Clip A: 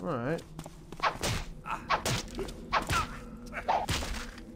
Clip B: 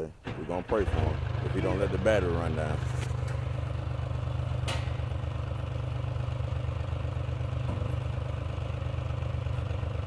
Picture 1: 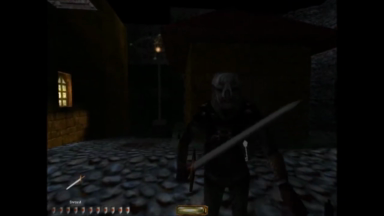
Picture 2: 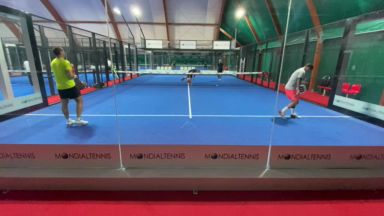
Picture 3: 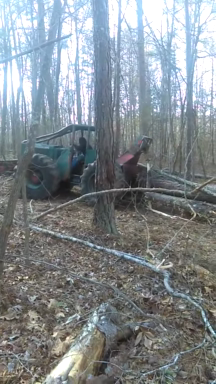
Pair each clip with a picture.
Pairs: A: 1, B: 3